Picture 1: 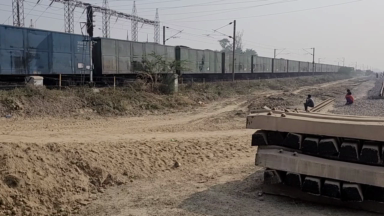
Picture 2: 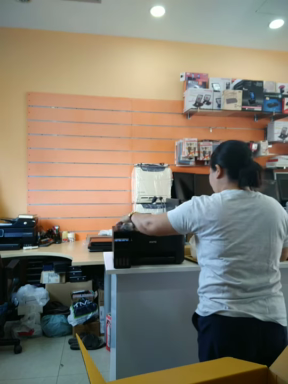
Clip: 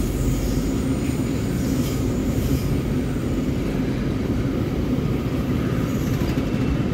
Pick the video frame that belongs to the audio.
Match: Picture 1